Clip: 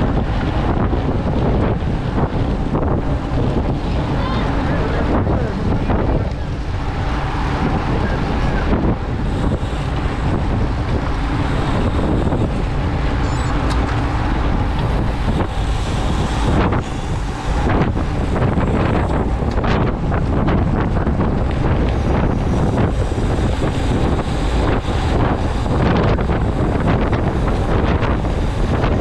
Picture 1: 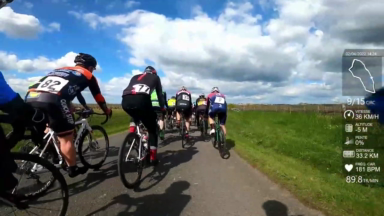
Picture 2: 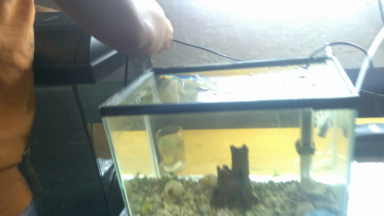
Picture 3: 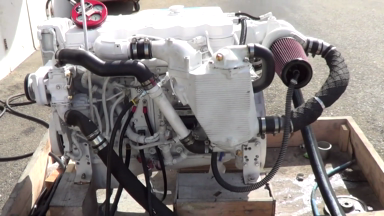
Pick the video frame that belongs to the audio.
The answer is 1